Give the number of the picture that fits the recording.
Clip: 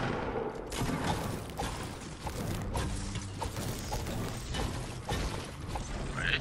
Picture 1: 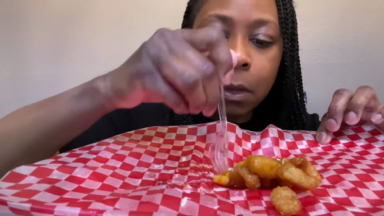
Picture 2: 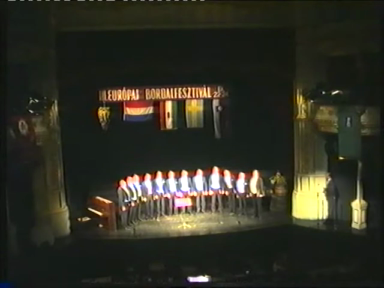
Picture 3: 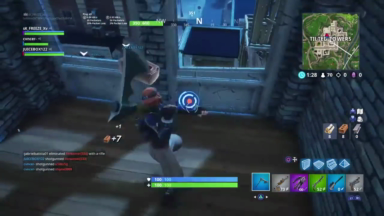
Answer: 3